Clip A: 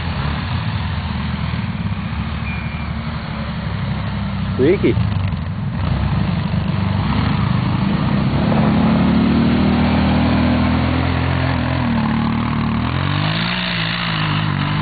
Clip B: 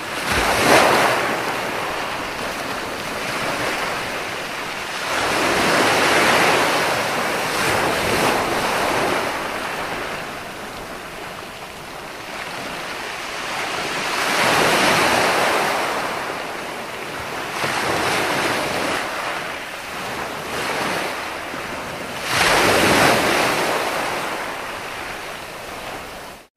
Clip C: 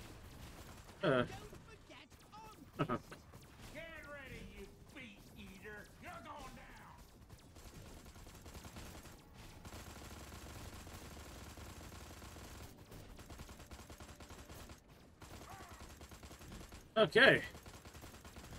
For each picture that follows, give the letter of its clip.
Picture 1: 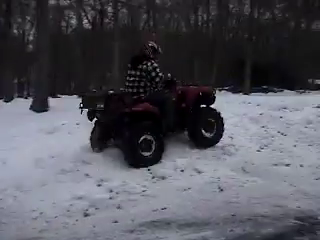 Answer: A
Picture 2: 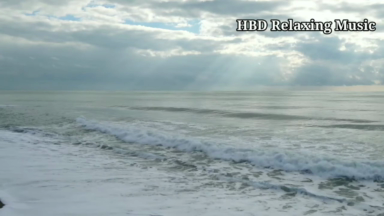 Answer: B